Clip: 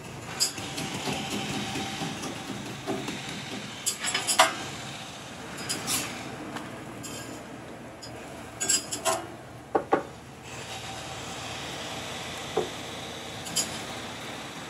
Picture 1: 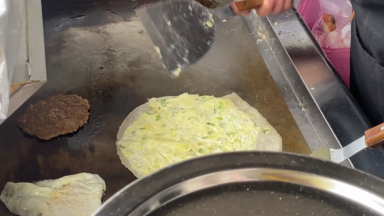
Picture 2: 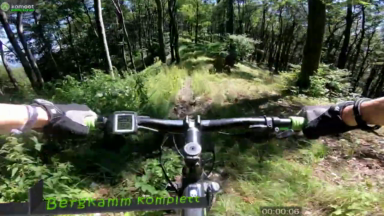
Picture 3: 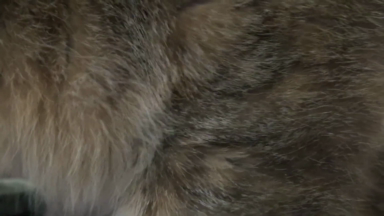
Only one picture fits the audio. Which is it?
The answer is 1